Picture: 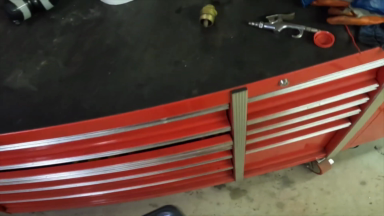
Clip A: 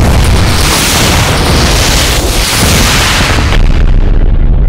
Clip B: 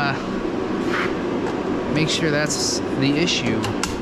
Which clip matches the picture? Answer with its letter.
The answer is B